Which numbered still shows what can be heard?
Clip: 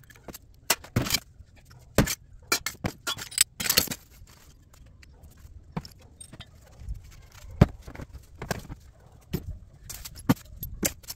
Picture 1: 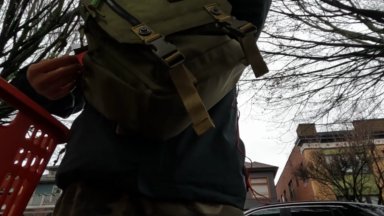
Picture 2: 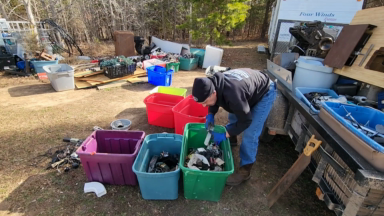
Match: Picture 2